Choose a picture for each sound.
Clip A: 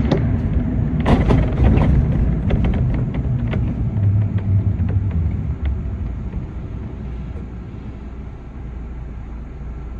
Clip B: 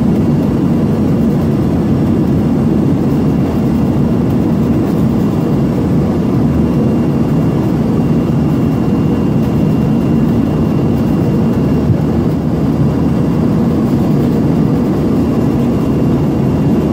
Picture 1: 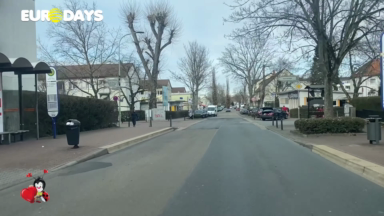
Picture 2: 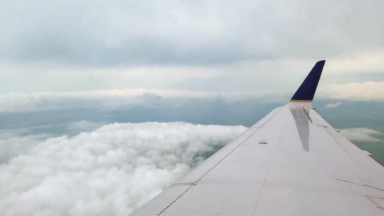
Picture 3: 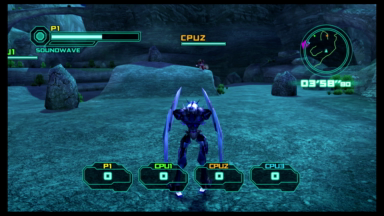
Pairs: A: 1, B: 2